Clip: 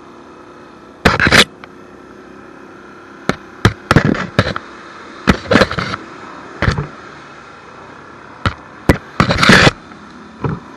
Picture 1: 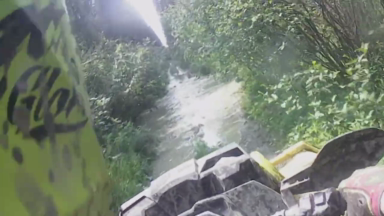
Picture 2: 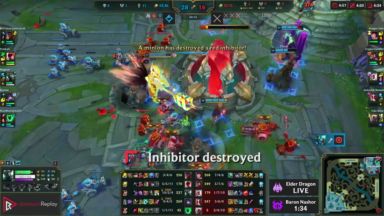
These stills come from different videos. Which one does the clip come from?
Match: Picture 1